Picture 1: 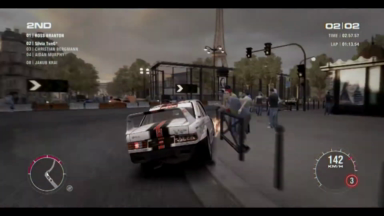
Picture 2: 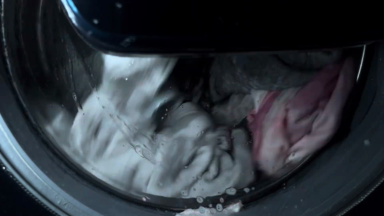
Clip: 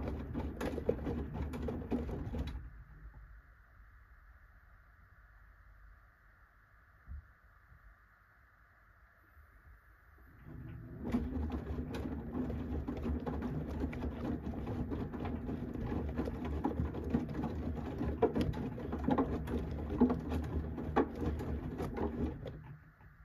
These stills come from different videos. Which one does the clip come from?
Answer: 2